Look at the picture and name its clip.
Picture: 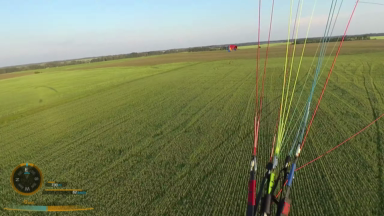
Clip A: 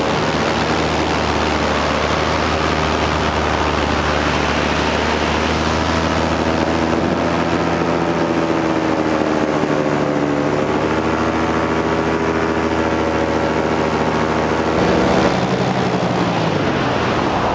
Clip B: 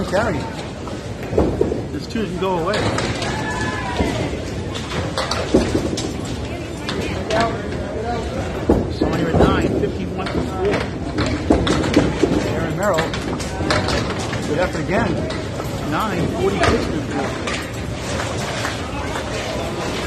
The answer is A